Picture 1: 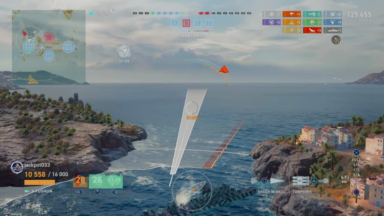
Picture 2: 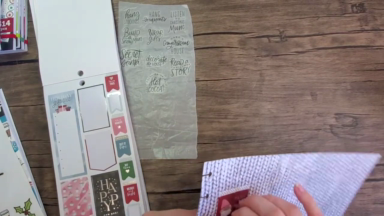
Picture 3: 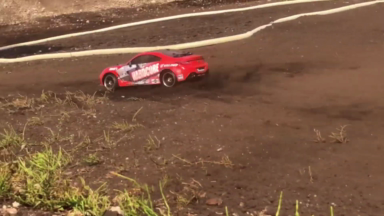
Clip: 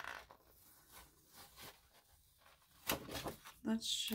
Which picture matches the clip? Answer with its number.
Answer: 2